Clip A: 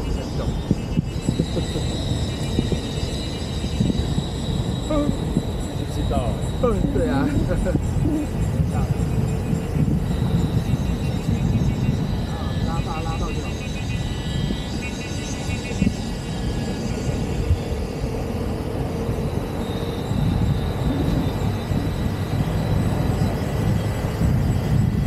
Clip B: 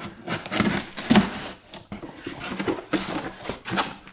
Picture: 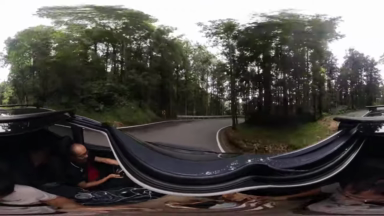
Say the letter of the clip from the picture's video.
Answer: A